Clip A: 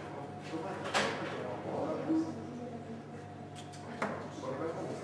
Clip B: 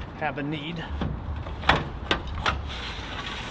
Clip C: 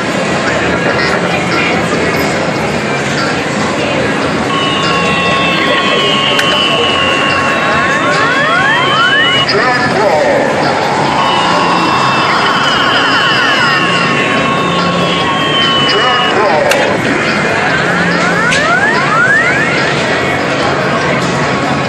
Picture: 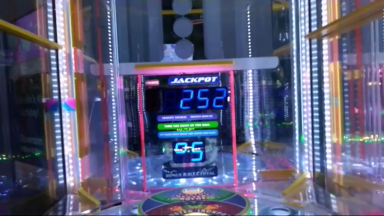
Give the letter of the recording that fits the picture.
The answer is C